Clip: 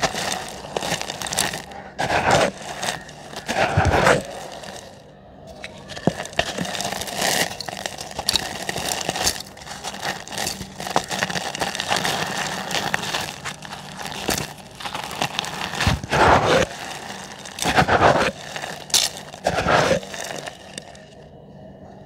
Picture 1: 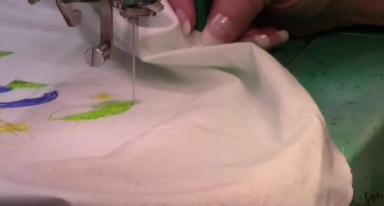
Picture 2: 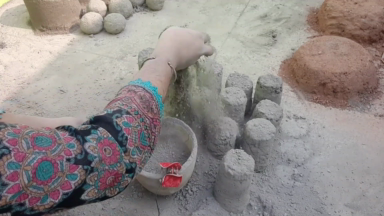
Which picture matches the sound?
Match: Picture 2